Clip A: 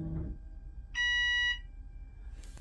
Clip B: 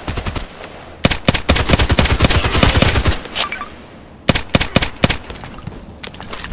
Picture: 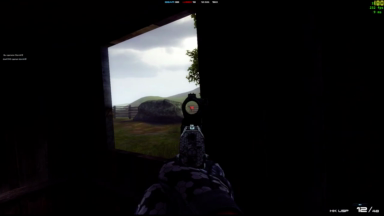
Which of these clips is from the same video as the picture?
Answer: B